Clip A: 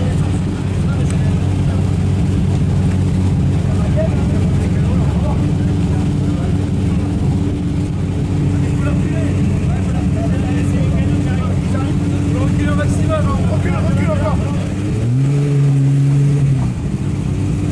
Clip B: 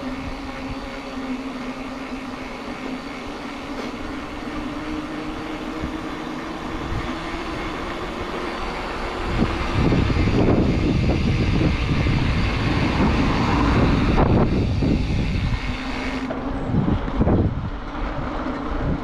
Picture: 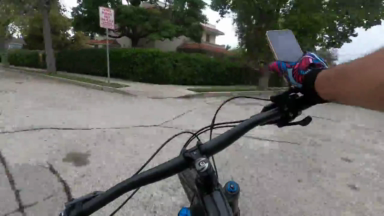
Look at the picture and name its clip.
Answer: B